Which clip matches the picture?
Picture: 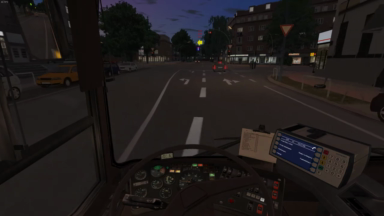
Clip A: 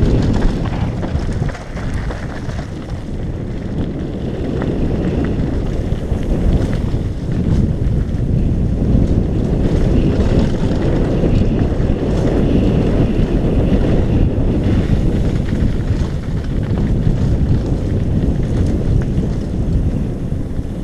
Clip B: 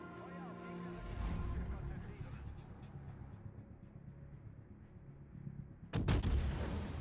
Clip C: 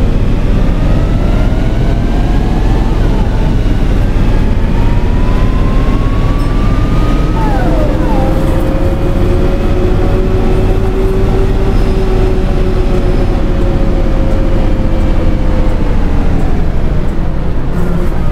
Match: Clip C